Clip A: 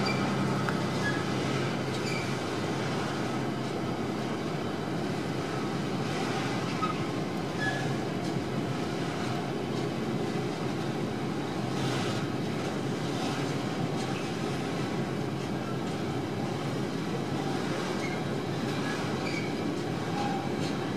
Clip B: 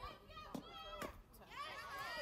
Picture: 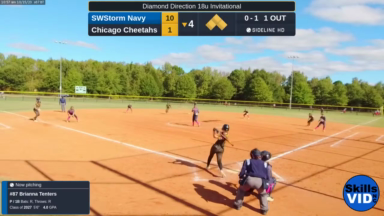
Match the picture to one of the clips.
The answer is B